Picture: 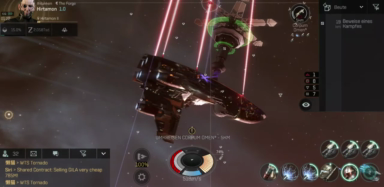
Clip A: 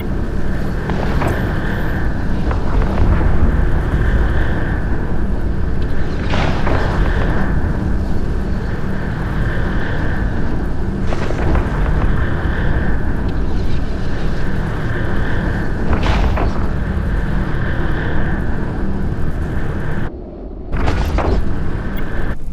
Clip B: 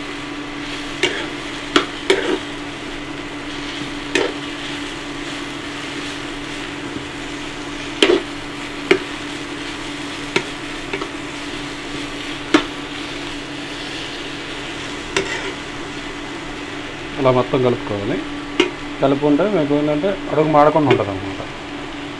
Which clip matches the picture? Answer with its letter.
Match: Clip A